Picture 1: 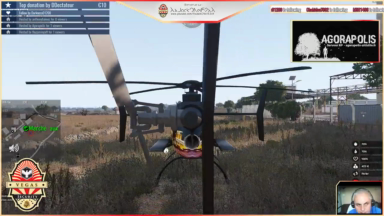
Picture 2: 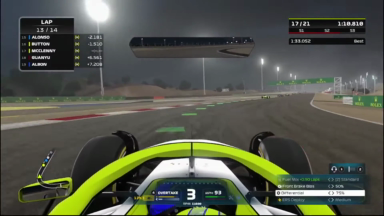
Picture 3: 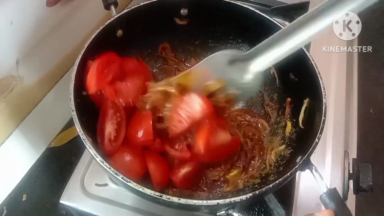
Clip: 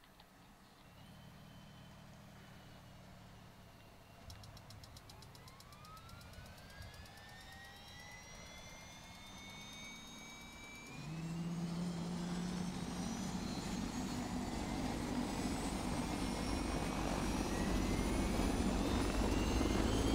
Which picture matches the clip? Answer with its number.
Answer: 1